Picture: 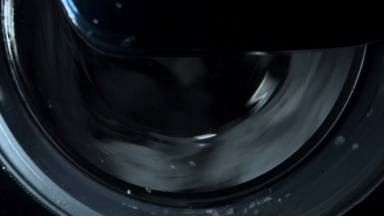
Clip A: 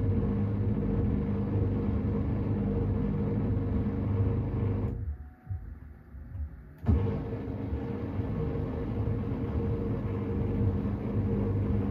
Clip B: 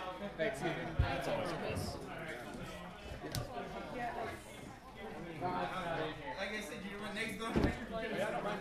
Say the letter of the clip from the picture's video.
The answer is A